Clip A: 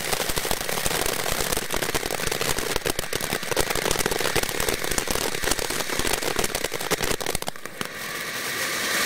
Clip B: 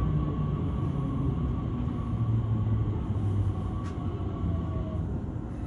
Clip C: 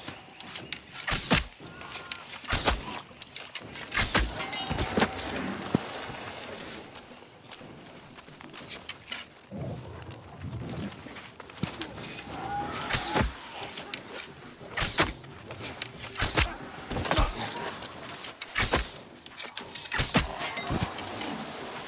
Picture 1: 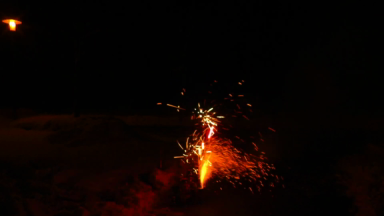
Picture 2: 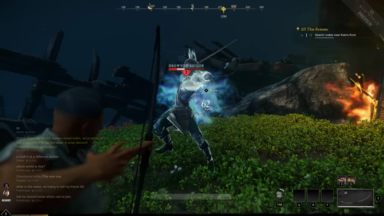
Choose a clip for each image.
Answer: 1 A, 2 C